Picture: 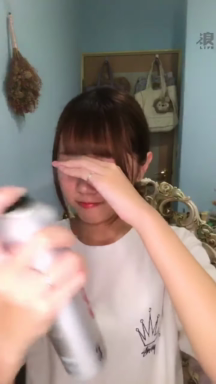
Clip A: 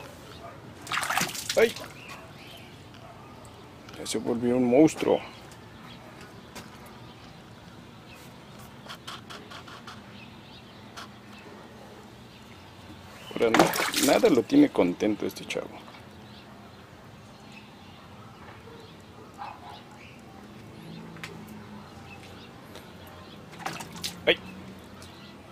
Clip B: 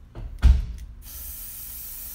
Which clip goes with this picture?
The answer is B